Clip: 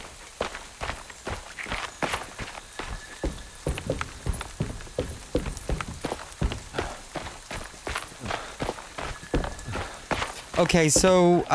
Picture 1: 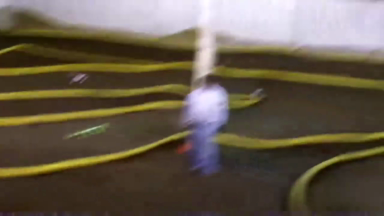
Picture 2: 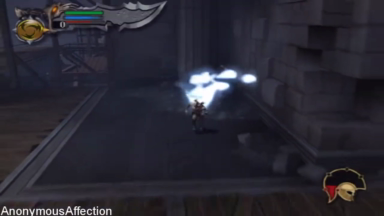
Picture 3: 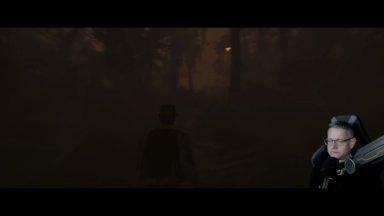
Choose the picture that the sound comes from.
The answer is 3